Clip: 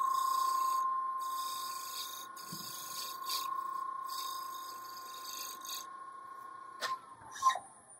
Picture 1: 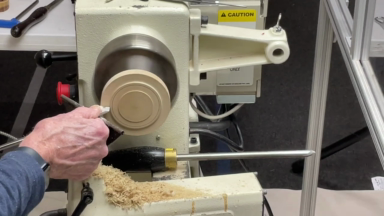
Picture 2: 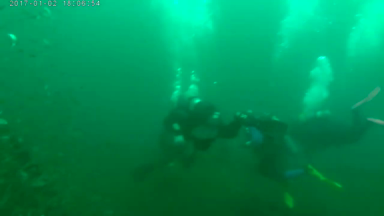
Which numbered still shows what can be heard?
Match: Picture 1